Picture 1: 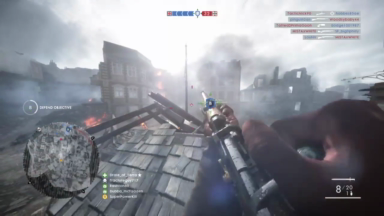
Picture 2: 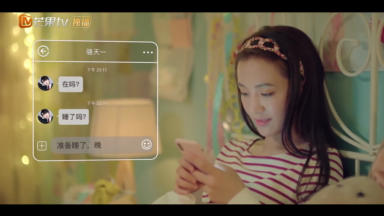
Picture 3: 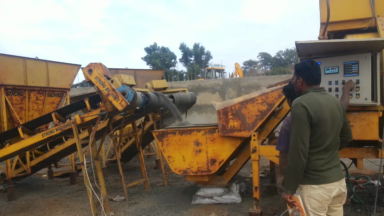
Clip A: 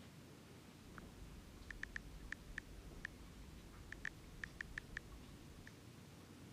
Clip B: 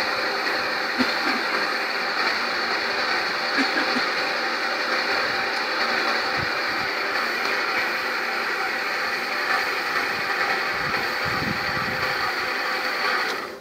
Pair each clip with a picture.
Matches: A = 2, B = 3